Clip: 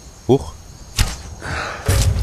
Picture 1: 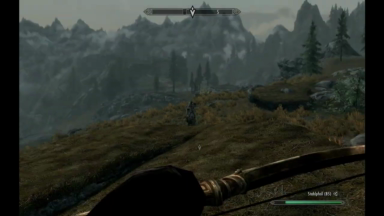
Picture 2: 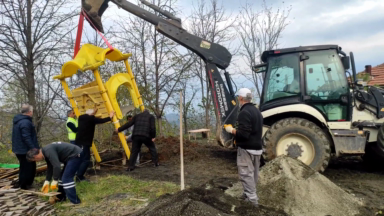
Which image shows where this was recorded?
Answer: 1